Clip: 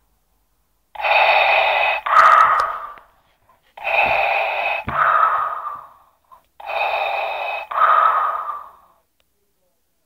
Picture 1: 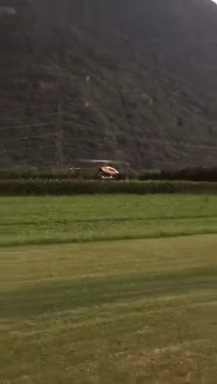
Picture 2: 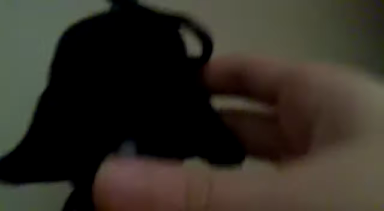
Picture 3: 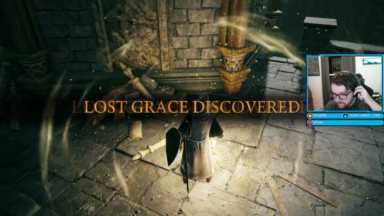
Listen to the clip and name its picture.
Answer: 2